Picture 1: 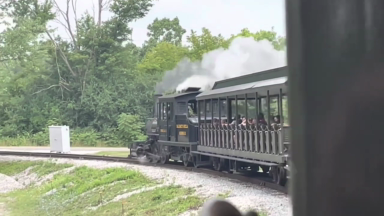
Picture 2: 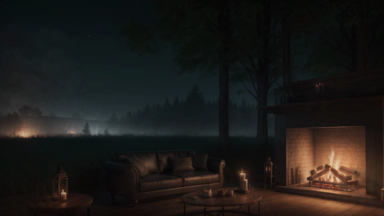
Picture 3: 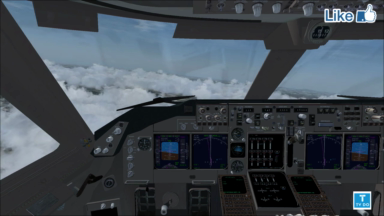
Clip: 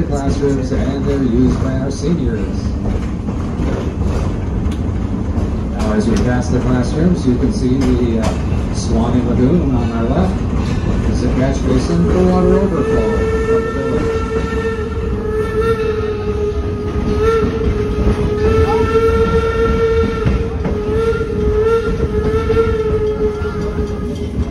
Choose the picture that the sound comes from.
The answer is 1